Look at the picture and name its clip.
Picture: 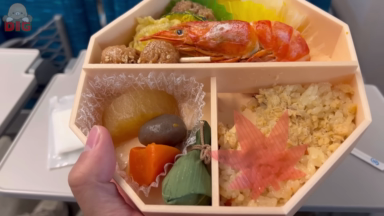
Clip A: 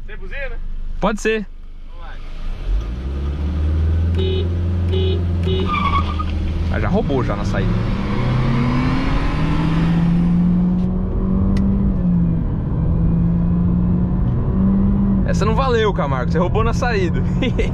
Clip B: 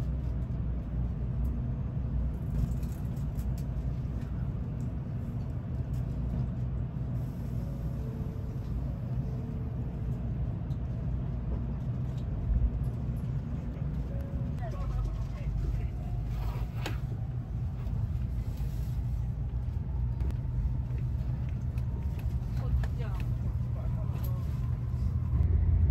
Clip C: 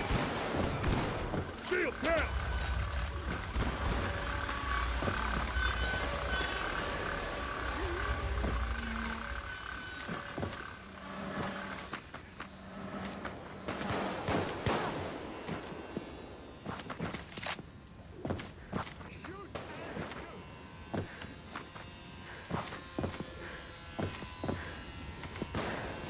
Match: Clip B